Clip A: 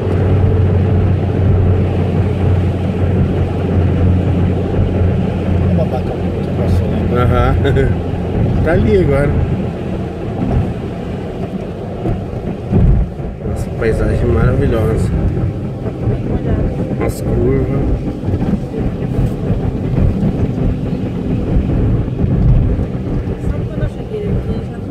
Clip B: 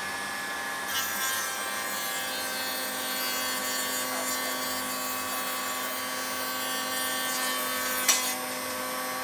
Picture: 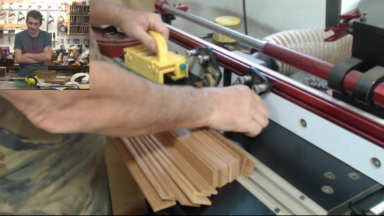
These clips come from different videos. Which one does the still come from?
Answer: B